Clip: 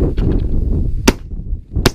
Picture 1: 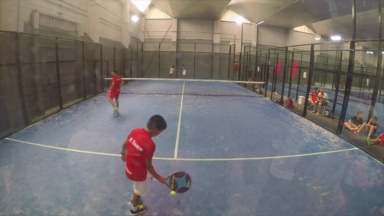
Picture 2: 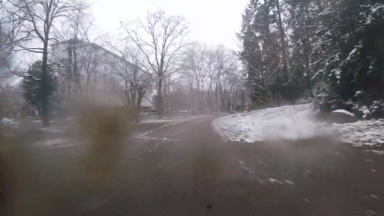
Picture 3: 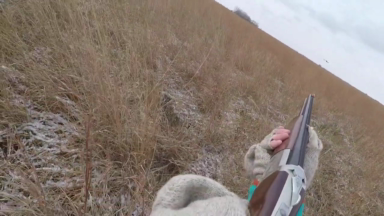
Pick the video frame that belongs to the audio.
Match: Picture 3